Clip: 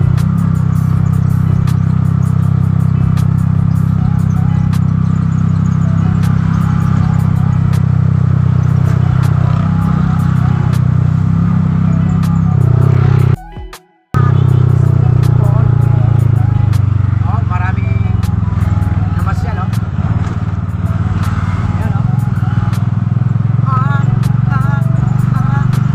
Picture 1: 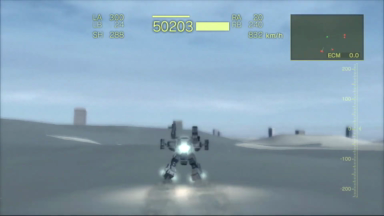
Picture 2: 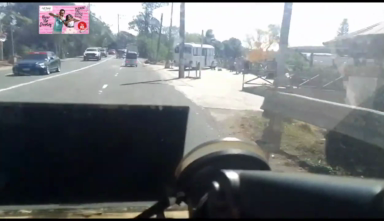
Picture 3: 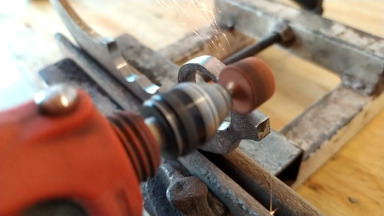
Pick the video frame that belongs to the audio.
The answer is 2